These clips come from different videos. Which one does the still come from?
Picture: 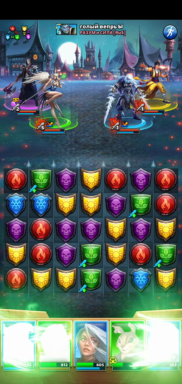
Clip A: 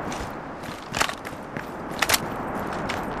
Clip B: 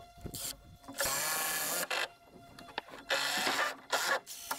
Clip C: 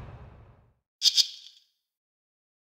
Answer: C